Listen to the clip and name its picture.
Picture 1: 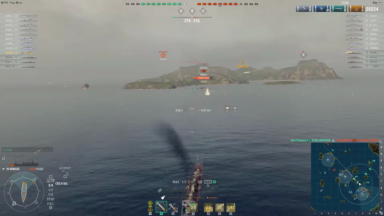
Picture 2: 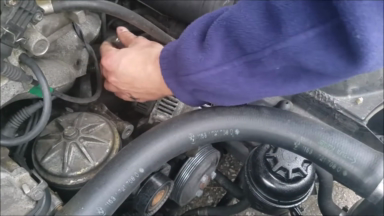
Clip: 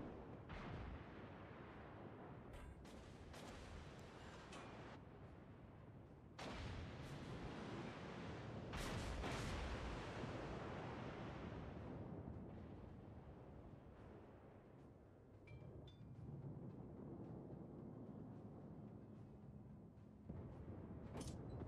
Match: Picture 1